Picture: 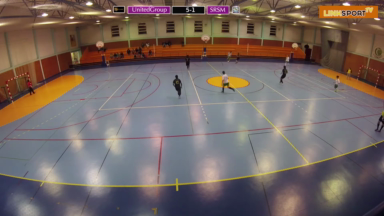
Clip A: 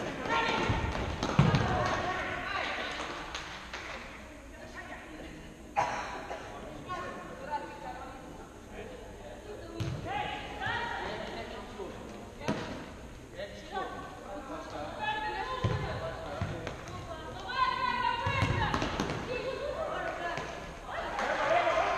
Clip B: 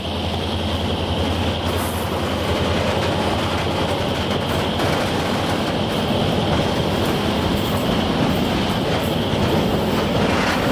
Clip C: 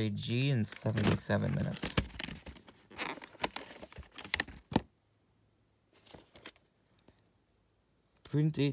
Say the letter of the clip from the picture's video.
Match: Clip A